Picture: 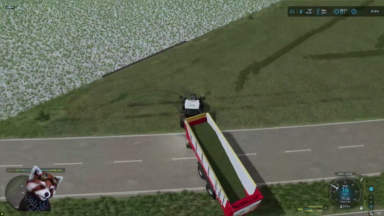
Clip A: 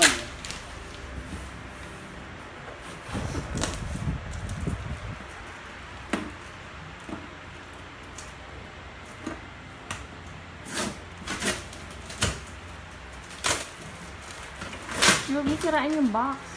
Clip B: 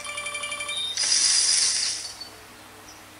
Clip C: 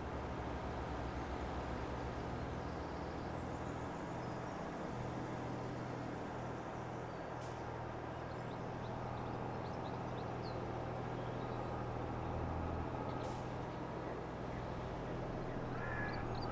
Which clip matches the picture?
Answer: C